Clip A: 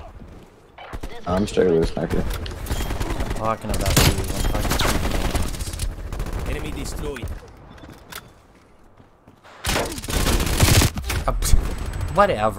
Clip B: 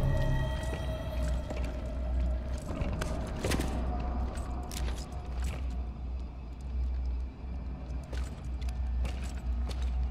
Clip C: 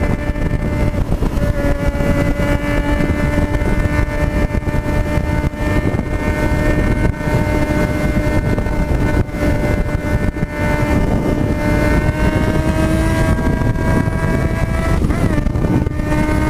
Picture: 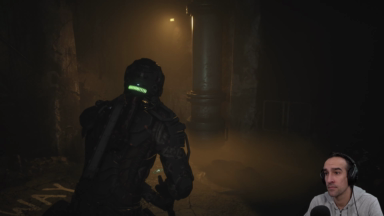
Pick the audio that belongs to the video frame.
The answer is B